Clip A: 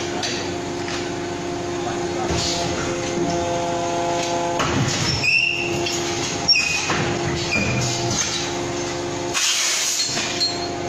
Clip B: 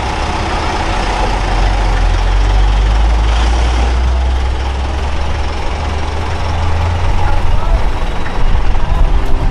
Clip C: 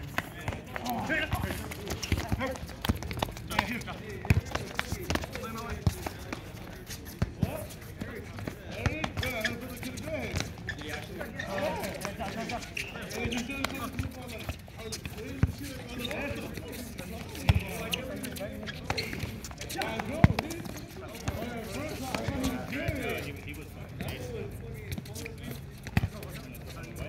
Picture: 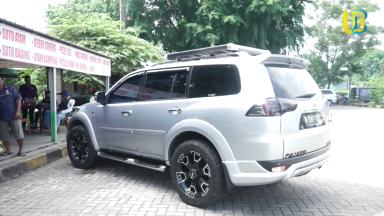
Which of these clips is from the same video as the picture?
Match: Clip B